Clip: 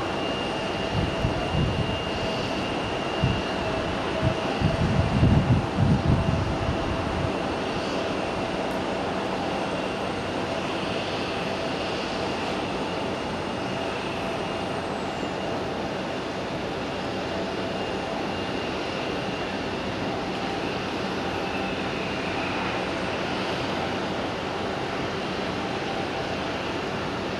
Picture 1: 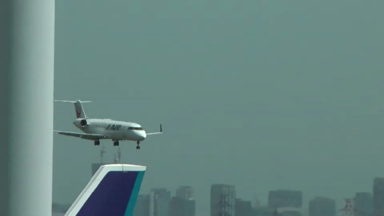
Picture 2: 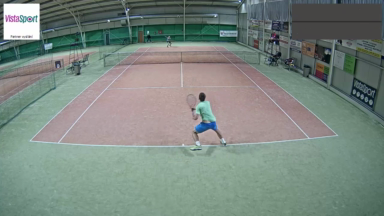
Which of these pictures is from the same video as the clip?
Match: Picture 1